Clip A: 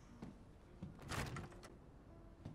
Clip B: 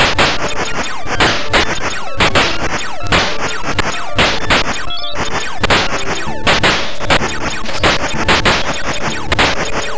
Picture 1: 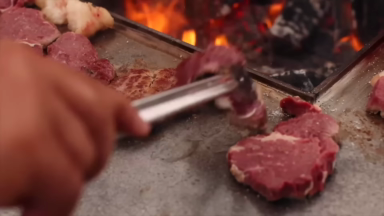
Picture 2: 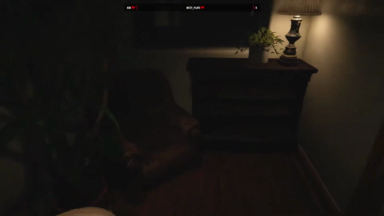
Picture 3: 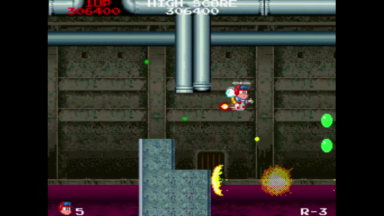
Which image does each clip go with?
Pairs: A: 2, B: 3